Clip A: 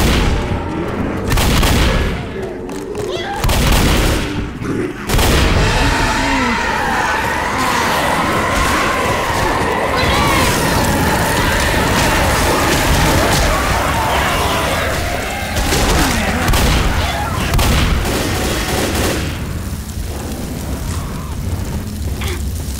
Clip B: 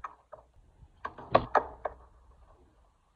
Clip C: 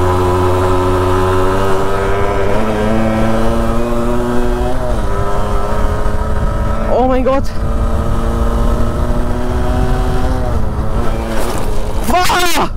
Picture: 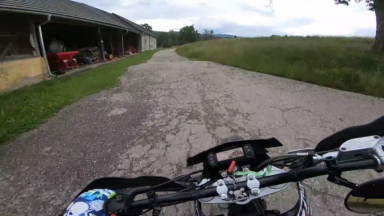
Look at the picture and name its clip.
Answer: C